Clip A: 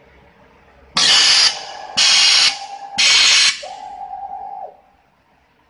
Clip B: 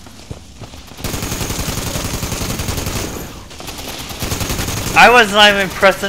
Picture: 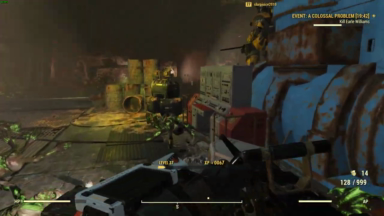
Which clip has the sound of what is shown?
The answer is B